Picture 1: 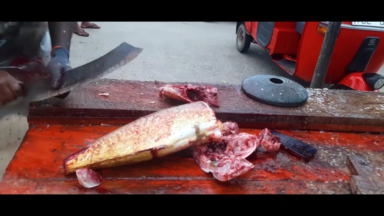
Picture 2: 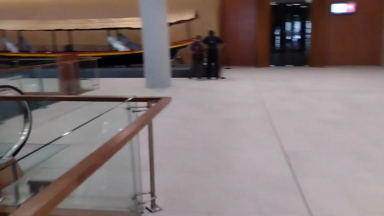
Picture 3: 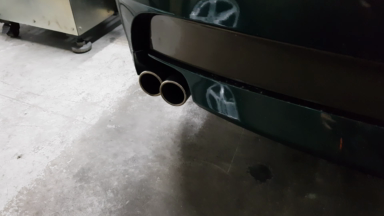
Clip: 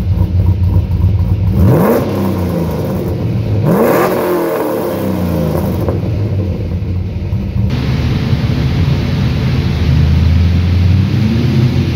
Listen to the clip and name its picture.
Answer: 3